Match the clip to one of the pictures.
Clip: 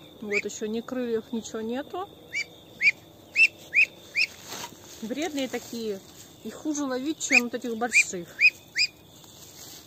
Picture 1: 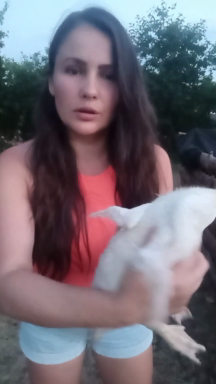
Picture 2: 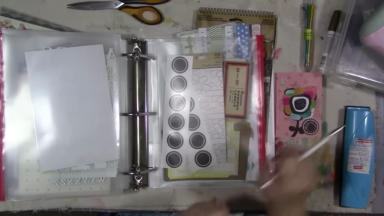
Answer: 1